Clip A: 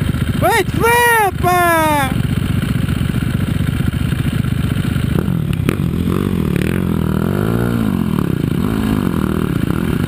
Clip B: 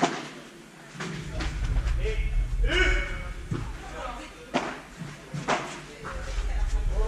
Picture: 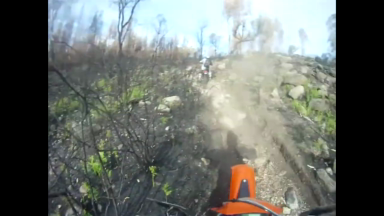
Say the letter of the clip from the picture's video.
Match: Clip A